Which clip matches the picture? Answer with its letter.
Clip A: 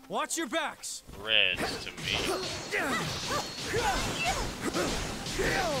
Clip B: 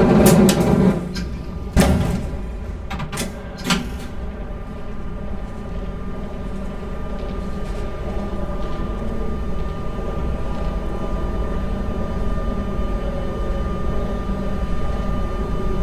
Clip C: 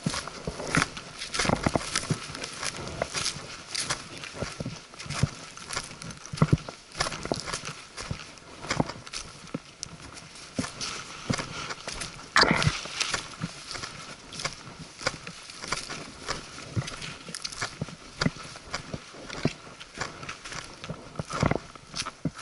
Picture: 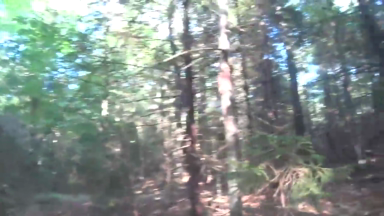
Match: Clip C